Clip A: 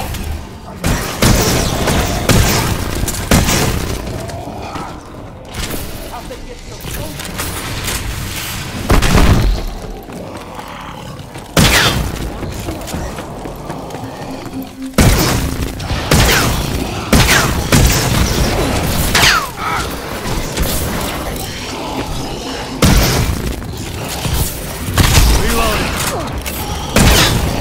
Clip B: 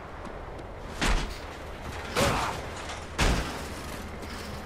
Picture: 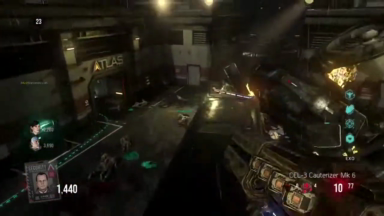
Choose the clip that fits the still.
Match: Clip A